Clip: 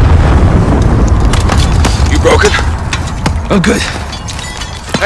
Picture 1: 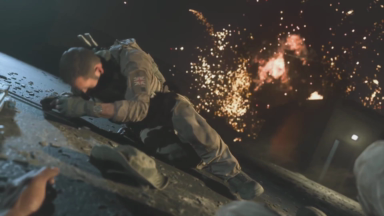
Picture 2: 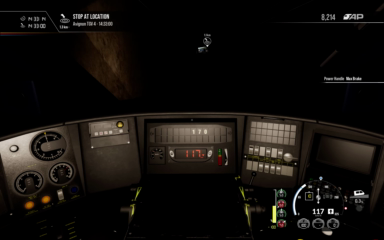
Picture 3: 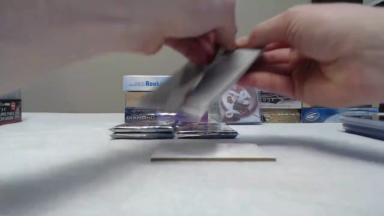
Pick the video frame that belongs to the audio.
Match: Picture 1